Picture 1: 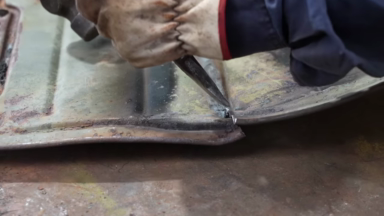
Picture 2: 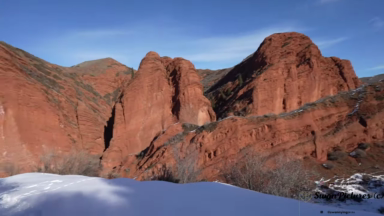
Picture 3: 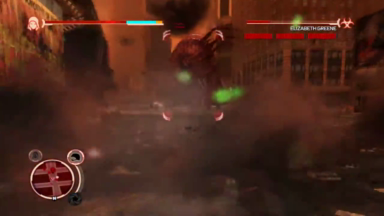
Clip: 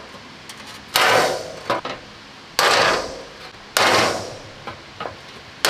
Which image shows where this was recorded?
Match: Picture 1